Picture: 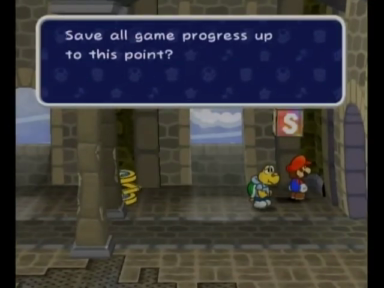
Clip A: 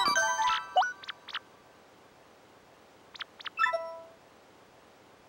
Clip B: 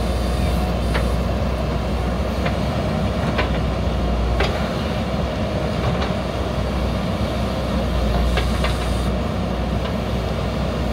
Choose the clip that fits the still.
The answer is A